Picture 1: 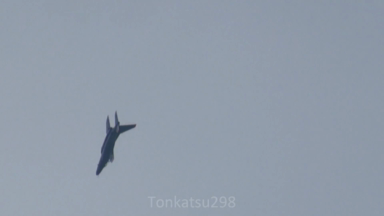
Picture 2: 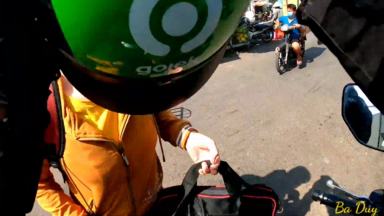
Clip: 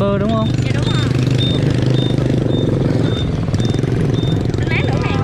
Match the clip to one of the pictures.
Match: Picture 2